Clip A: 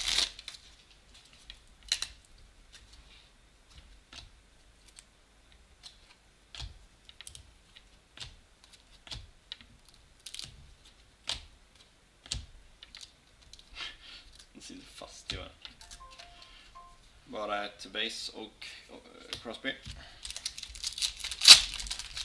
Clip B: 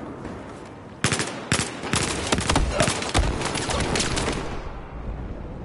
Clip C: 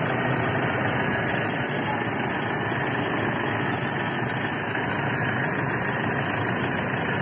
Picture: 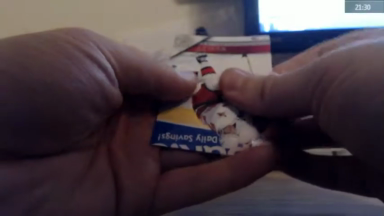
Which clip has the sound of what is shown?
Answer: A